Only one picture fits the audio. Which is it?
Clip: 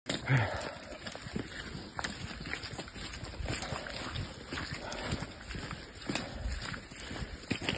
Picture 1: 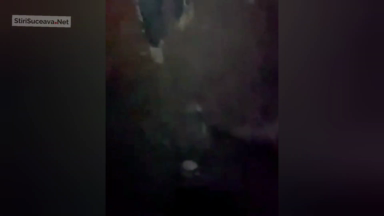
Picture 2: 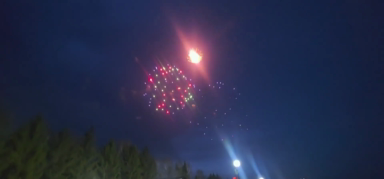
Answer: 1